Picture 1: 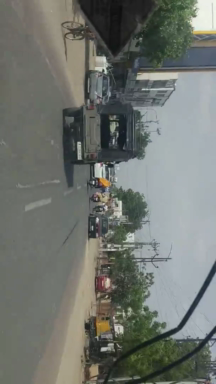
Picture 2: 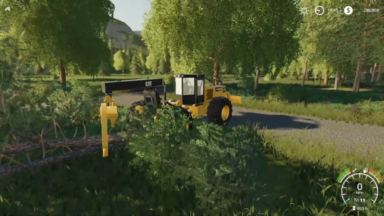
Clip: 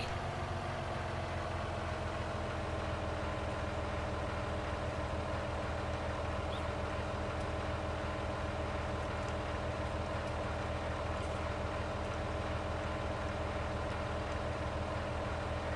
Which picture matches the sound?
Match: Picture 2